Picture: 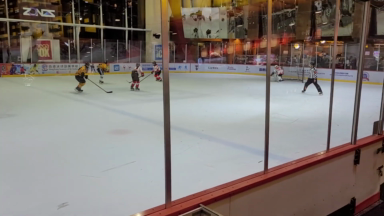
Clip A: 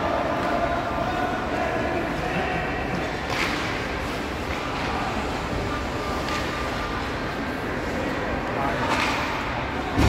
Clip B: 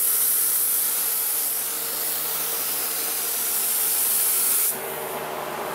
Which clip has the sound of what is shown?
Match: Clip A